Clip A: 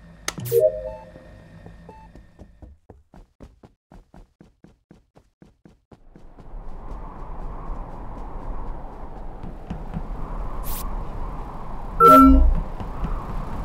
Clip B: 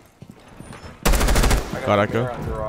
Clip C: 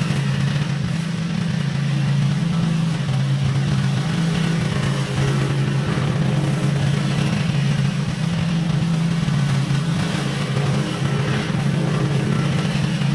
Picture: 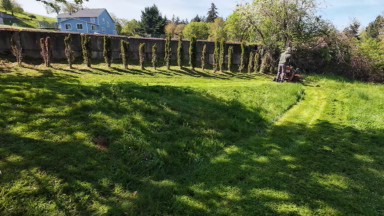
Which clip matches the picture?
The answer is C